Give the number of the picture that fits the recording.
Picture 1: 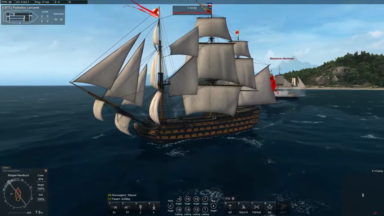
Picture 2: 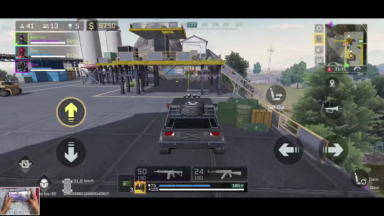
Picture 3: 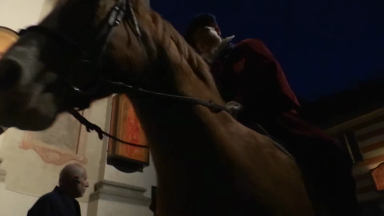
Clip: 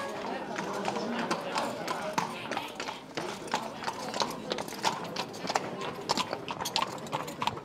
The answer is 3